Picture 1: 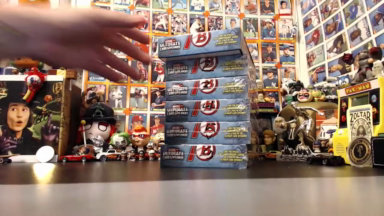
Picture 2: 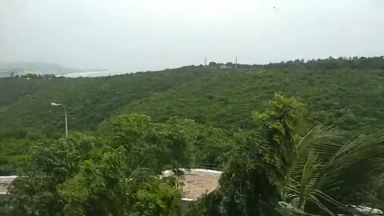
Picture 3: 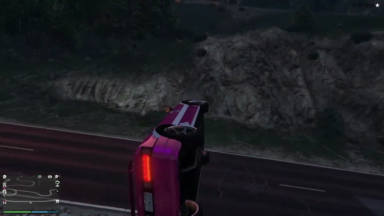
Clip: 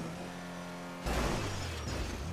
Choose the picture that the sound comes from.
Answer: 3